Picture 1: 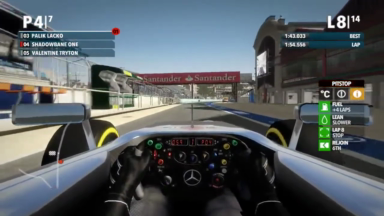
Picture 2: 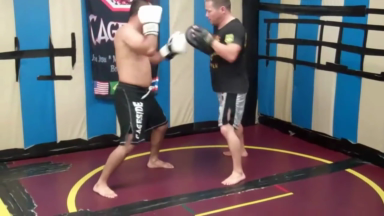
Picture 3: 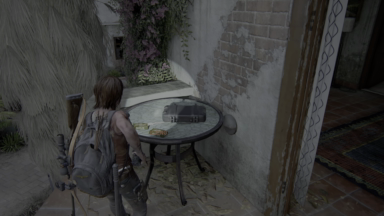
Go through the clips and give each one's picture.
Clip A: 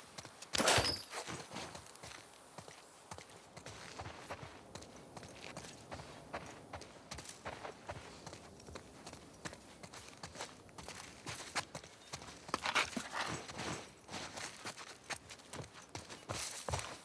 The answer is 3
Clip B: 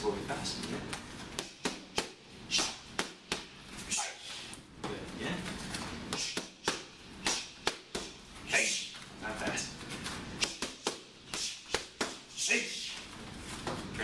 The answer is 2